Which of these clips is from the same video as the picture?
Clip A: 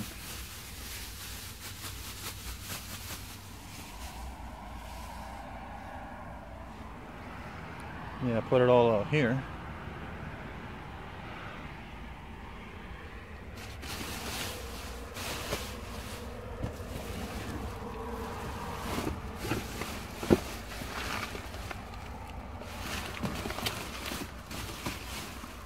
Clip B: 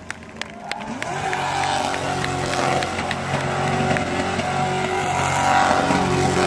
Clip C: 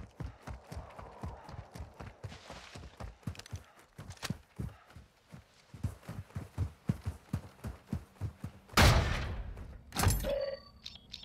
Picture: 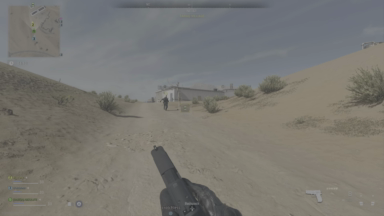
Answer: C